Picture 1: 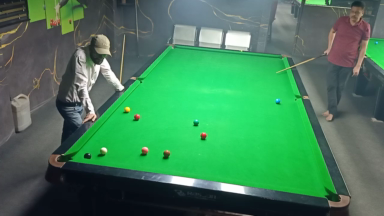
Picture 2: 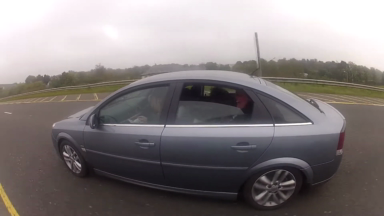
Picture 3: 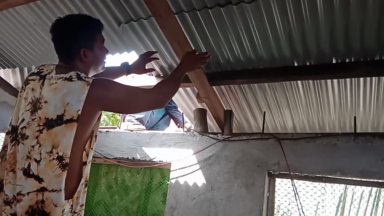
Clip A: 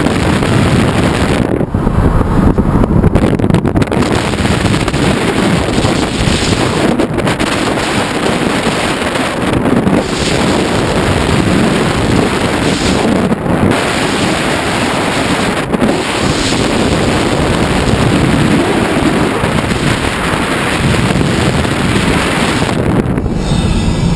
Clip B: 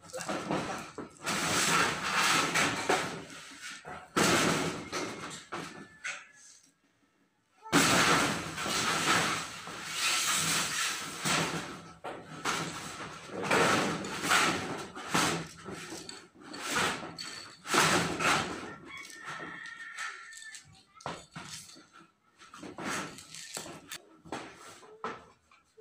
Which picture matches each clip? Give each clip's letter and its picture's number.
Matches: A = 2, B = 3